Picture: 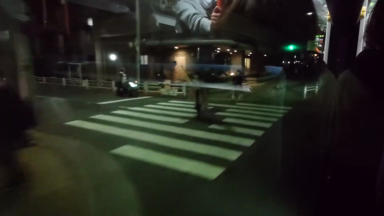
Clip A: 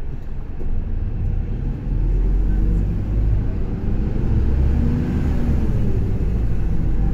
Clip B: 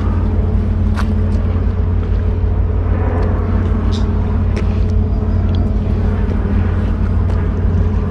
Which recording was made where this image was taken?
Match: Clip A